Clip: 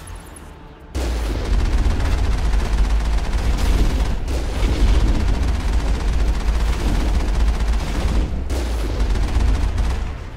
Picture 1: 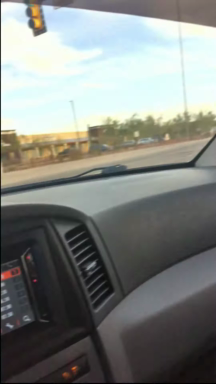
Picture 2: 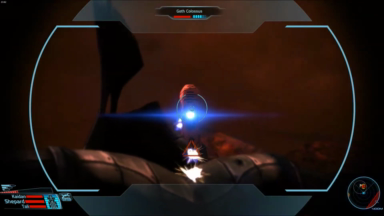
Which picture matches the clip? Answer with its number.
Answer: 2